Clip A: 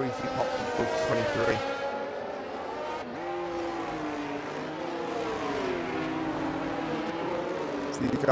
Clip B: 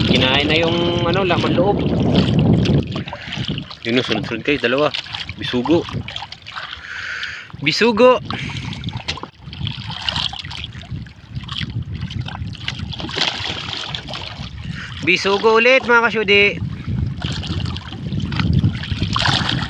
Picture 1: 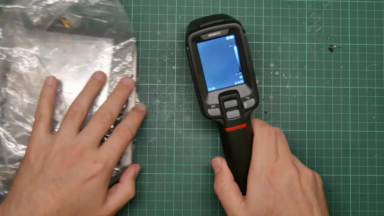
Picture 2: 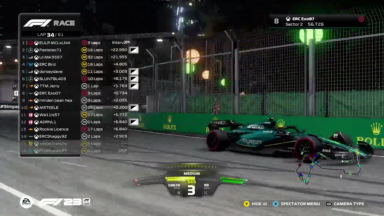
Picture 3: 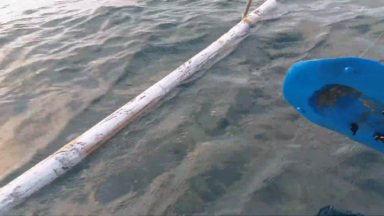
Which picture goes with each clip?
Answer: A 2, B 3